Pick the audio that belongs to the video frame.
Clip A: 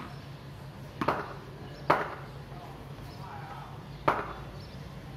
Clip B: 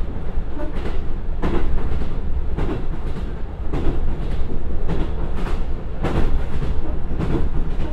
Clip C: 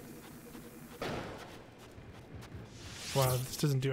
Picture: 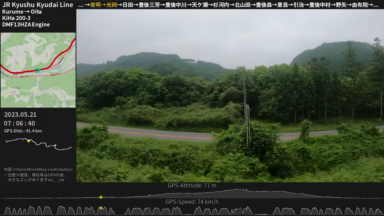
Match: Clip B